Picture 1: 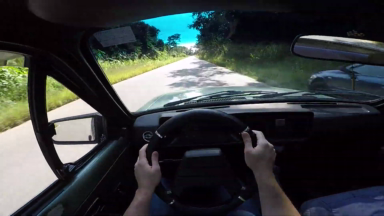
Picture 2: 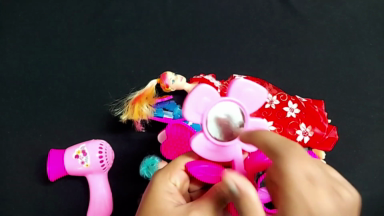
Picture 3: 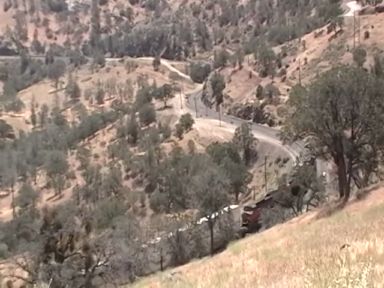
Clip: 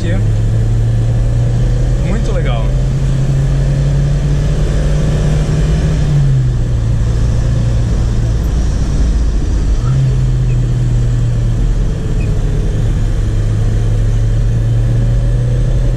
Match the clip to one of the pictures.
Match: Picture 1